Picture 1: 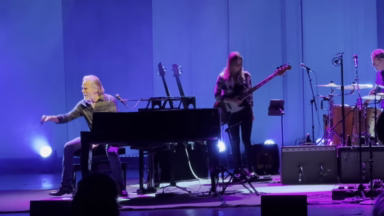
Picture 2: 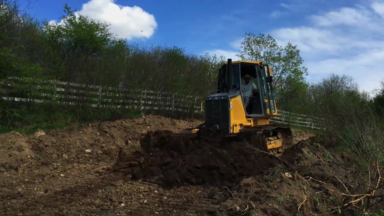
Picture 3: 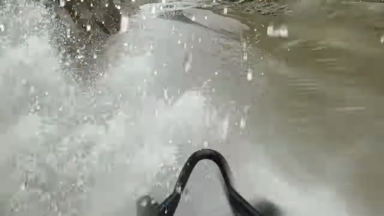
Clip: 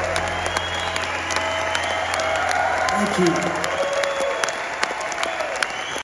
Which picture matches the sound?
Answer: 1